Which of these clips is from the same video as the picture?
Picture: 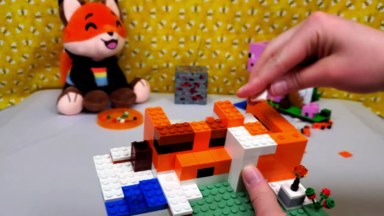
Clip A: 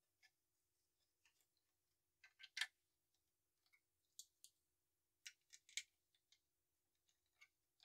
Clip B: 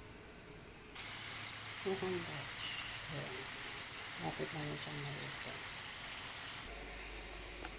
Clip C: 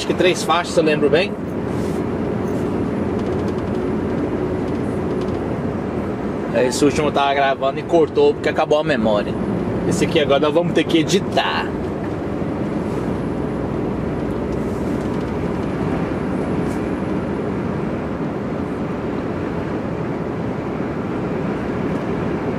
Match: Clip A